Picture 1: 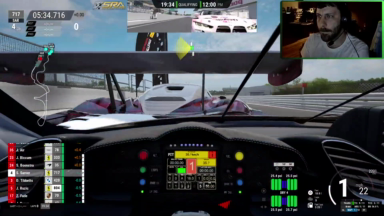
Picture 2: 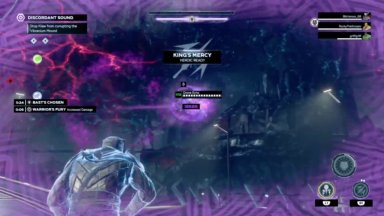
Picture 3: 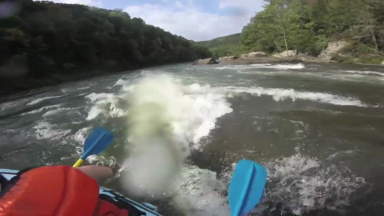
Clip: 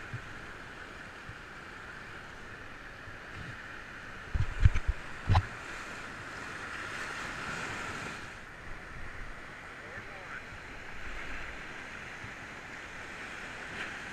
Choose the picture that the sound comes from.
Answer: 3